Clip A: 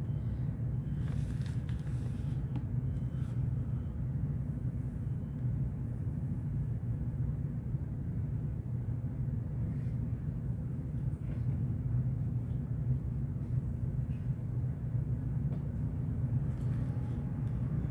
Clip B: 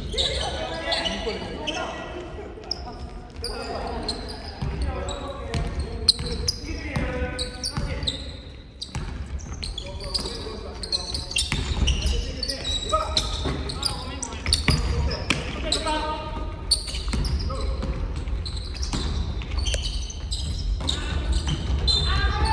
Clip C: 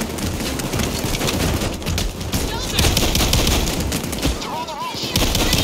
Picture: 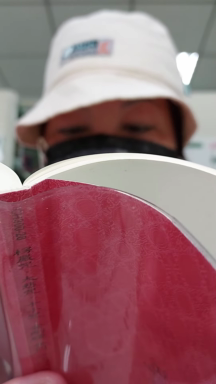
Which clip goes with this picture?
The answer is A